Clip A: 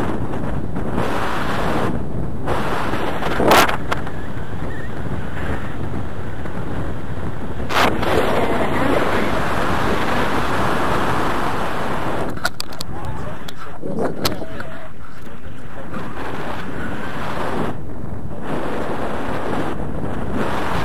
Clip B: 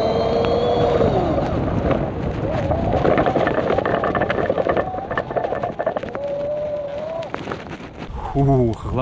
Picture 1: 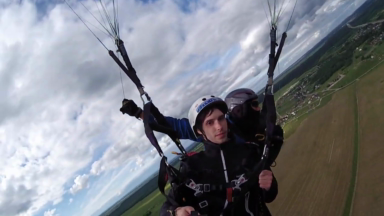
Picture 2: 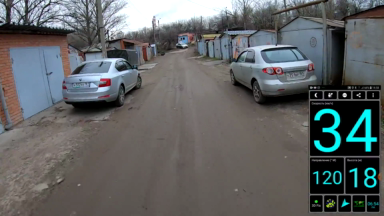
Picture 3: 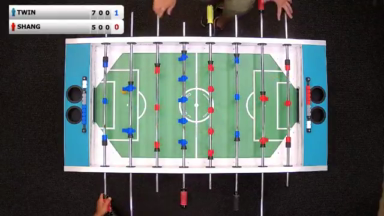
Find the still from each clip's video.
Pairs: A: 1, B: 2